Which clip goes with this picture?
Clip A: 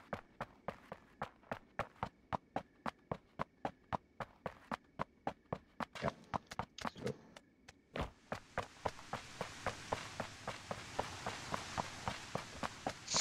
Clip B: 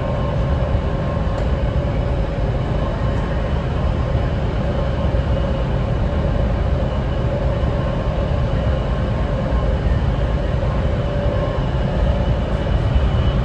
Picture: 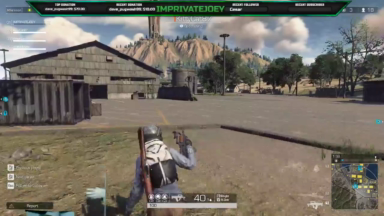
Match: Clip A